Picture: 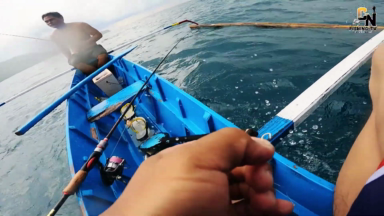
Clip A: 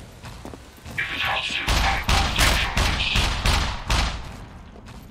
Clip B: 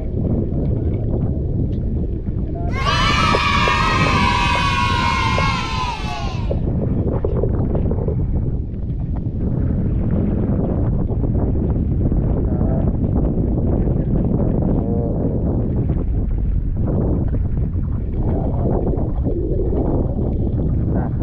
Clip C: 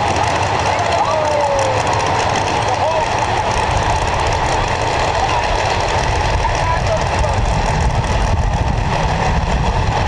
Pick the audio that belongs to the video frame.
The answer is B